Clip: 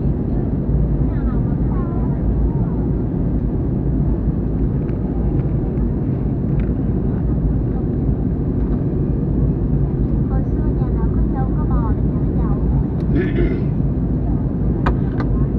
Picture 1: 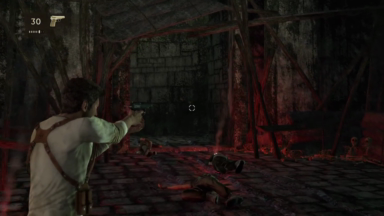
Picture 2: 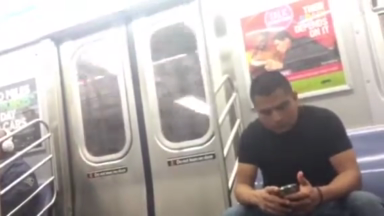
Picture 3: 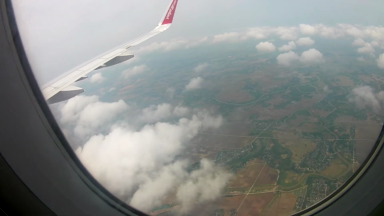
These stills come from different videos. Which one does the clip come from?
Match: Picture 3